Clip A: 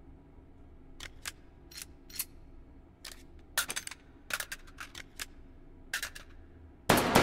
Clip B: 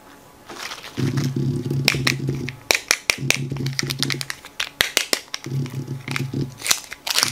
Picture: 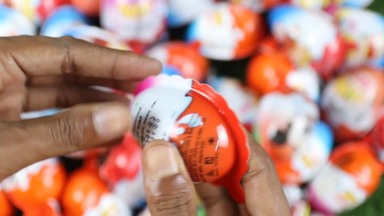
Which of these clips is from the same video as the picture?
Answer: B